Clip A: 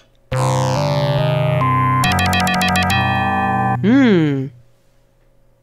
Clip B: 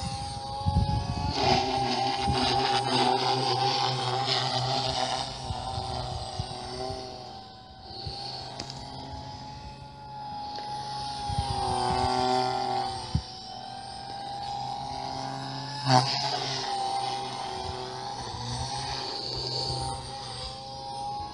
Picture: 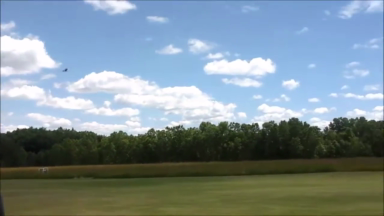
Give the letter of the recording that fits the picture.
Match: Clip B